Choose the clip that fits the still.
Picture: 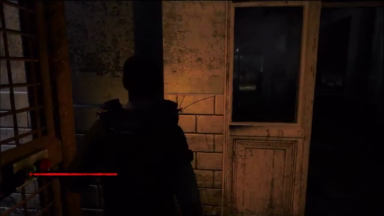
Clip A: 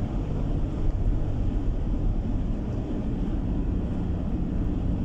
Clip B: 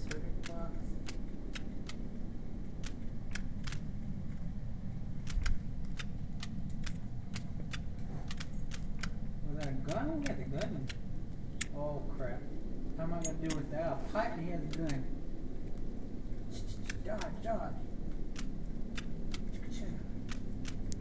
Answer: B